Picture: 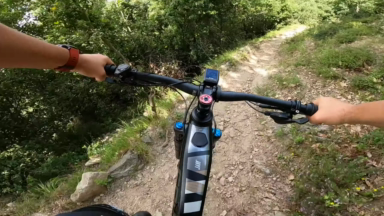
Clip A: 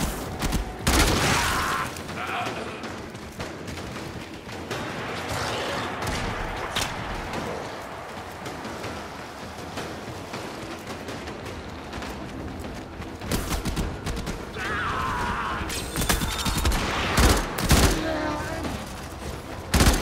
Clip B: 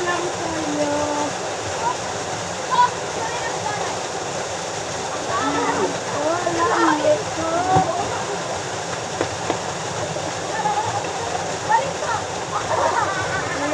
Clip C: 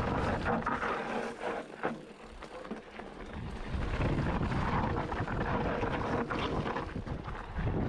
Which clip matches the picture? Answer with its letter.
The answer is C